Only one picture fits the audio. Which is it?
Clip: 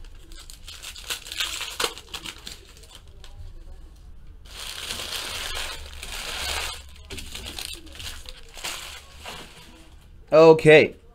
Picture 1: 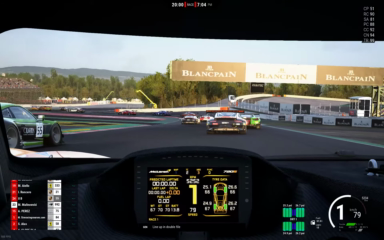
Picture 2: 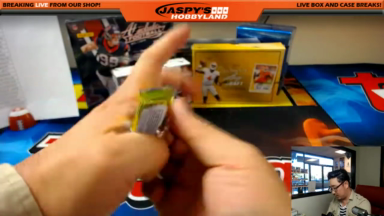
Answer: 2